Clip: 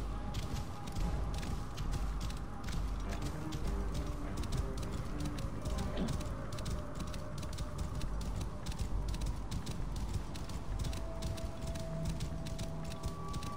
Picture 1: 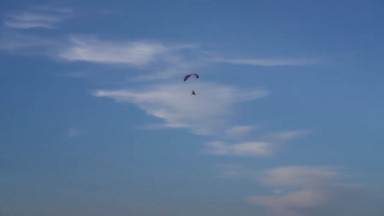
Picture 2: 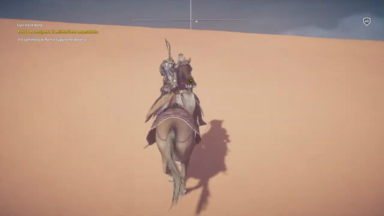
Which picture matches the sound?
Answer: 2